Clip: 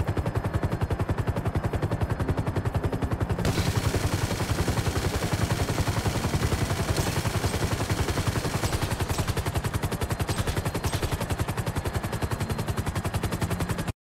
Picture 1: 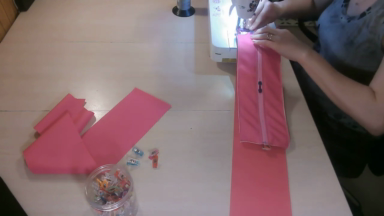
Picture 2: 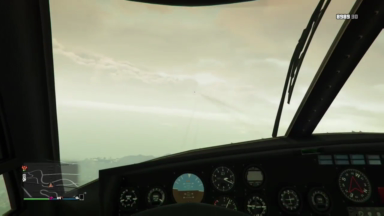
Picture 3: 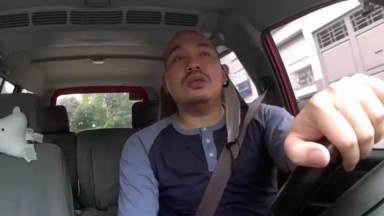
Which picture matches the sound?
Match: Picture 2